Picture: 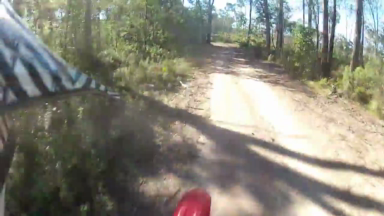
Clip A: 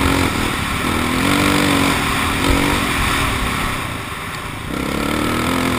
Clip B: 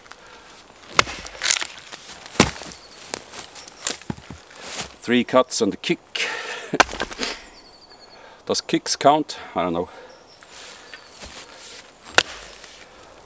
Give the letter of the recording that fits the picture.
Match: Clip A